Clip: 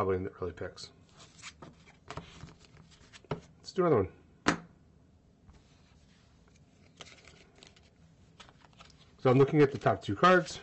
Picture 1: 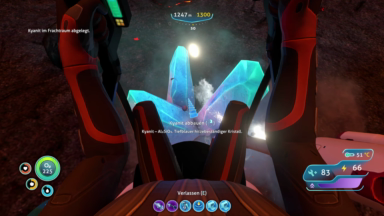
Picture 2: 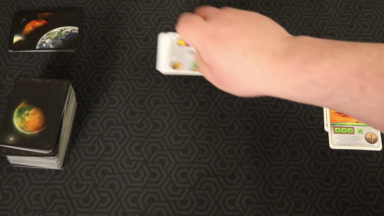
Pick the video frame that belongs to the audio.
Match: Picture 2